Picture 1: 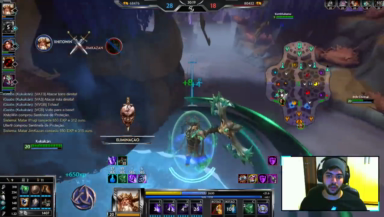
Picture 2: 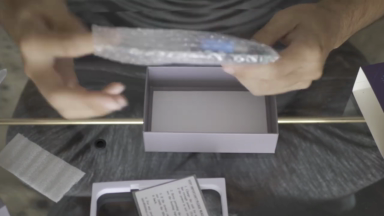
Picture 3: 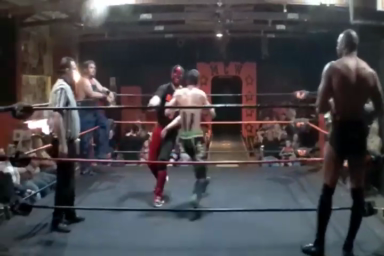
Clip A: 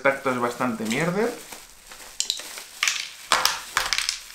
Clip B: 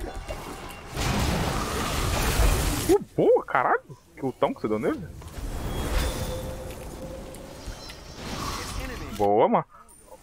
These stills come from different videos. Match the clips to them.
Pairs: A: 2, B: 1